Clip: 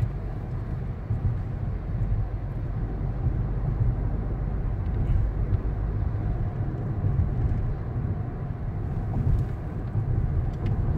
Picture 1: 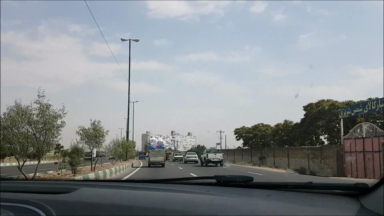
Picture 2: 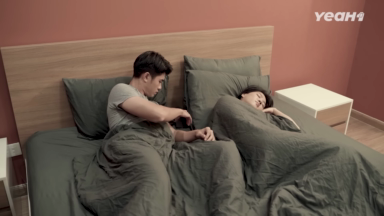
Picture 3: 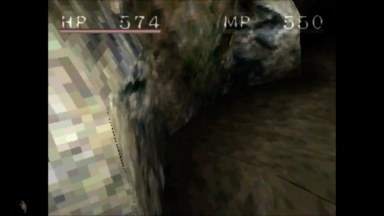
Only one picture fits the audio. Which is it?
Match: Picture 1